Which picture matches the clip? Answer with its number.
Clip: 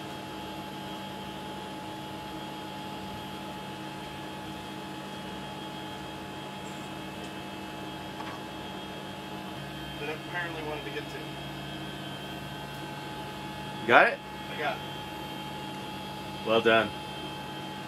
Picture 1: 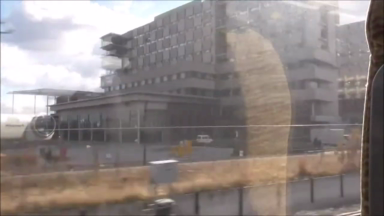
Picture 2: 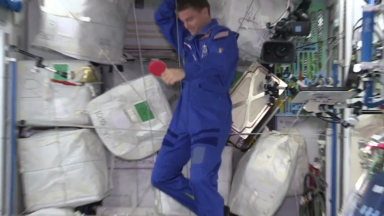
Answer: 2